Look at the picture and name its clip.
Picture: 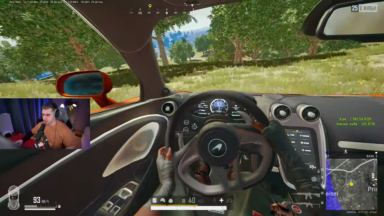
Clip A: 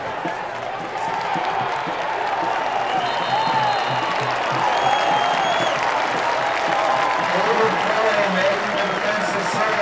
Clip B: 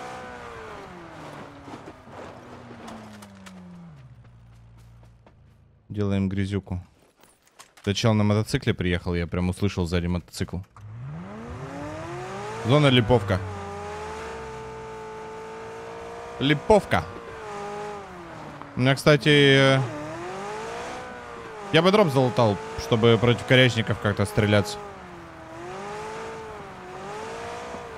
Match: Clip B